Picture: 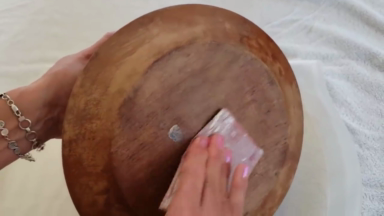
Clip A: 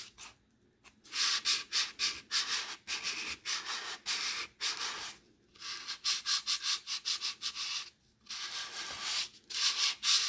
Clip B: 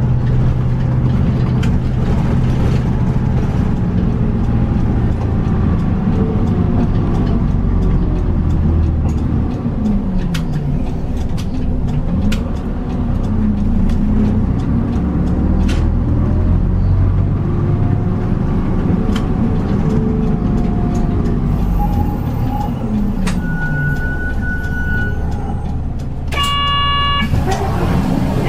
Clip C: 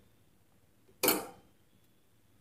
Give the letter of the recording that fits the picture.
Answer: A